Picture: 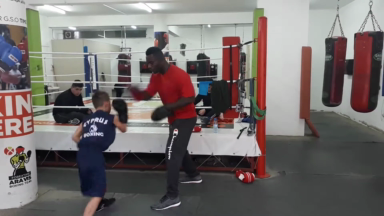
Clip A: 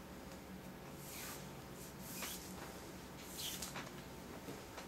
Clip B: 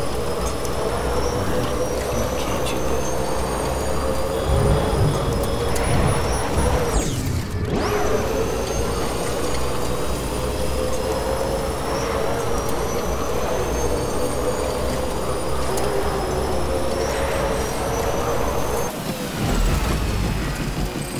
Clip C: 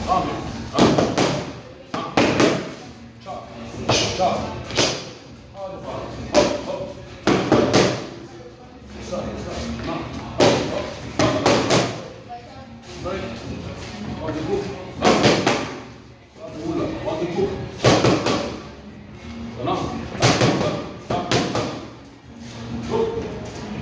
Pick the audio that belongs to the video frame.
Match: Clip C